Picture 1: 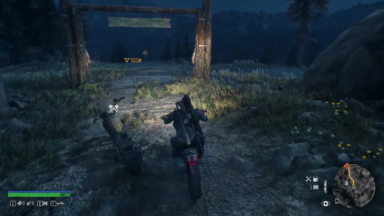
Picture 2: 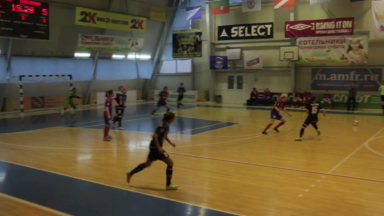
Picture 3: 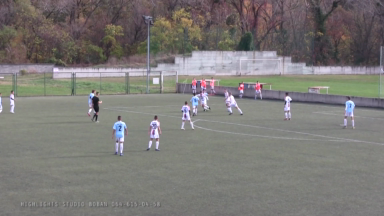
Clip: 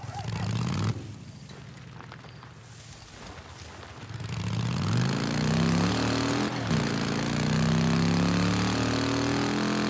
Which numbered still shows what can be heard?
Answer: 1